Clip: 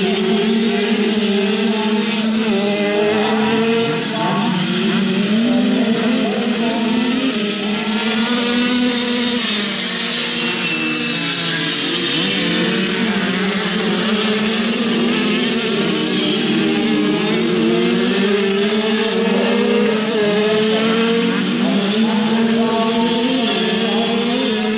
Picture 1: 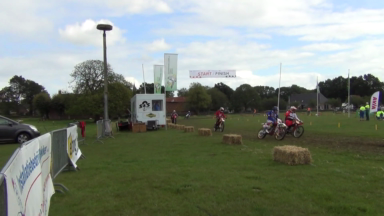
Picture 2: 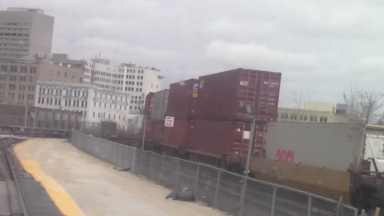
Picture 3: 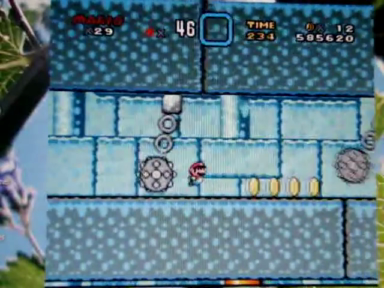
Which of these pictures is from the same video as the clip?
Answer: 1